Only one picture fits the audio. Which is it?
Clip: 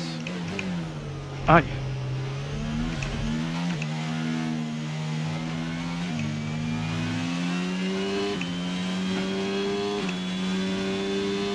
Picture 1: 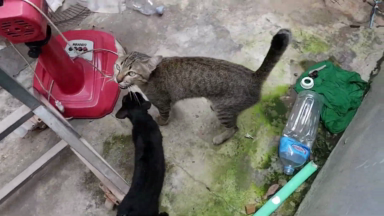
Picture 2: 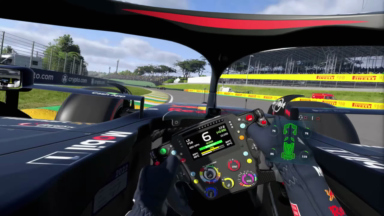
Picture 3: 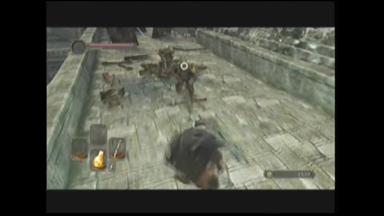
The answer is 2